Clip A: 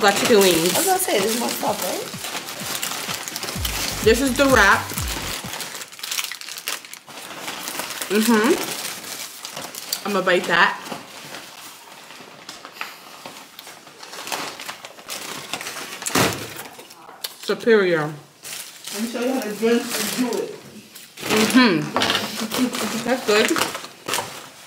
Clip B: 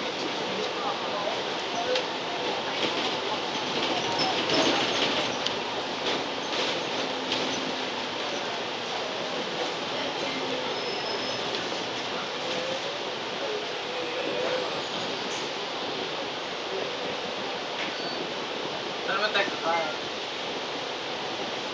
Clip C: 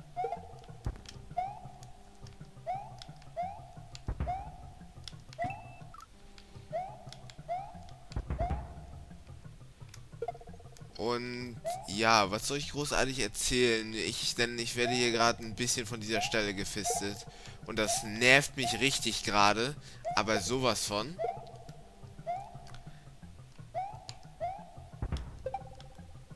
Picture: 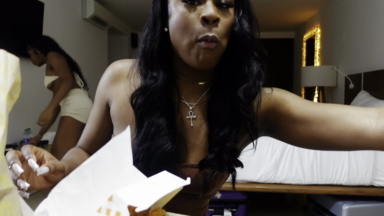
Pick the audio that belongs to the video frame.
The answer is A